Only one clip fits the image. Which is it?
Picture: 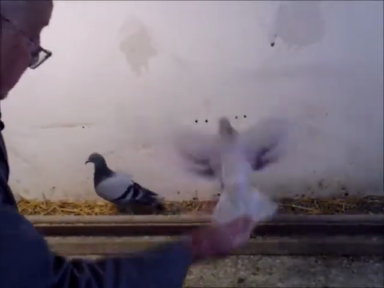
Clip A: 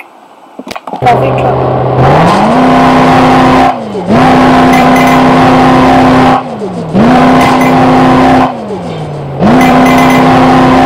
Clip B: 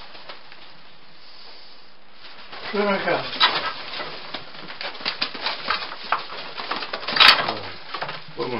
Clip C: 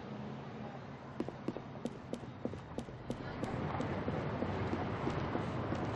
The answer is B